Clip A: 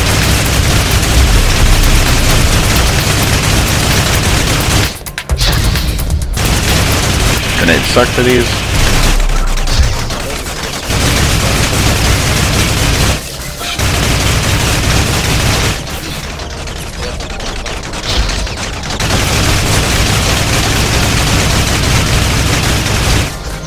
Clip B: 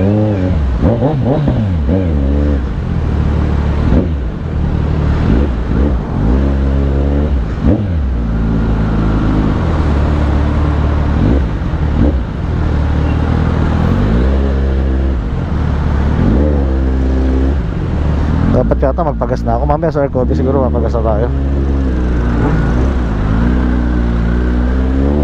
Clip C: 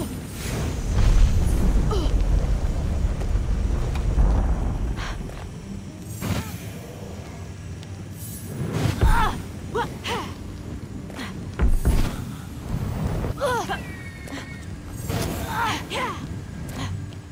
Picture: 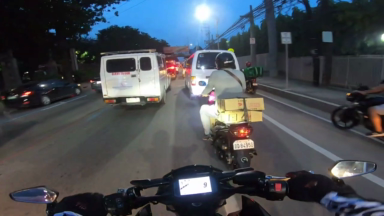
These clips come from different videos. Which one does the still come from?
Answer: B